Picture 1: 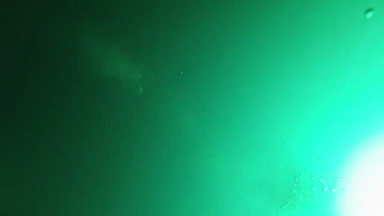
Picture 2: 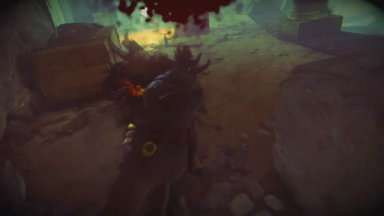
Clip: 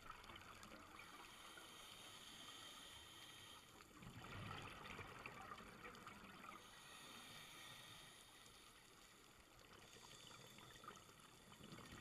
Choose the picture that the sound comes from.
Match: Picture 1